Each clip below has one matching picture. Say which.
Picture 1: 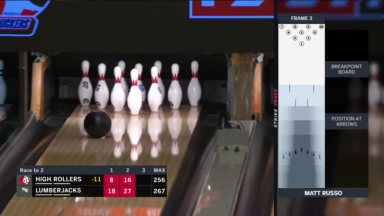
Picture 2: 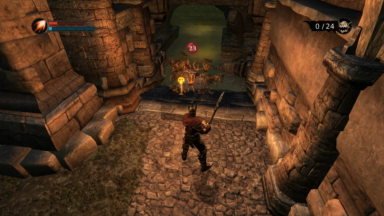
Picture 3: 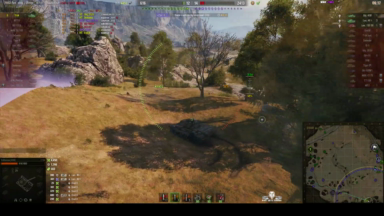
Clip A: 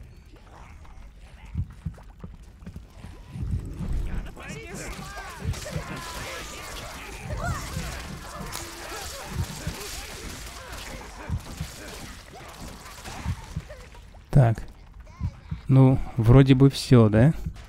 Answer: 2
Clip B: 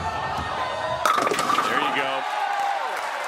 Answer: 1